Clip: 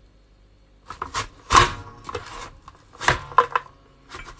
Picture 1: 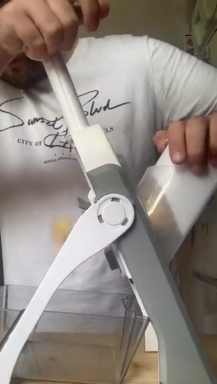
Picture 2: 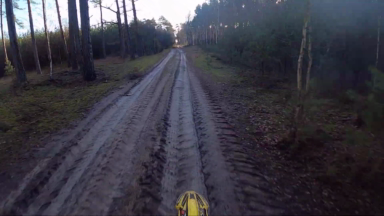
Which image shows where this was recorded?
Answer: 1